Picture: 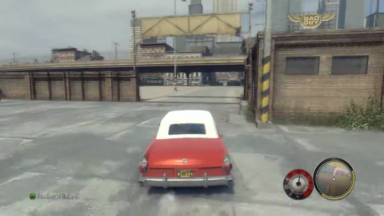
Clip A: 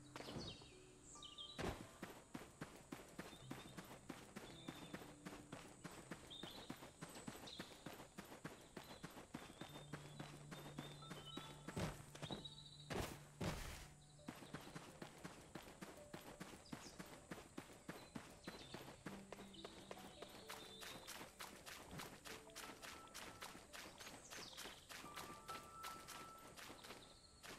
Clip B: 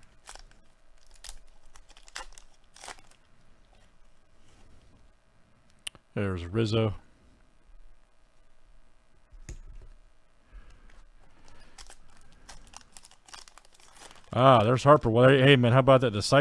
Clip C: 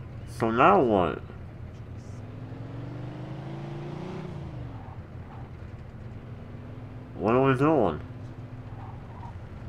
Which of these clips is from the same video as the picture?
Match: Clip C